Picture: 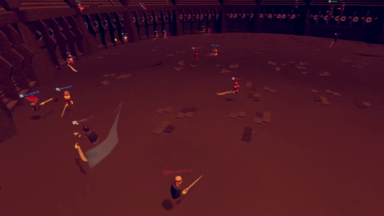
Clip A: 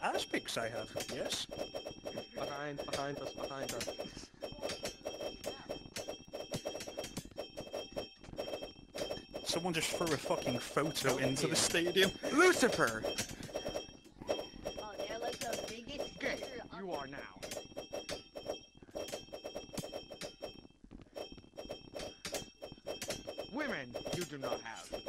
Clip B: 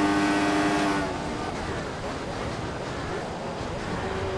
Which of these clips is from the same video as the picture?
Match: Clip A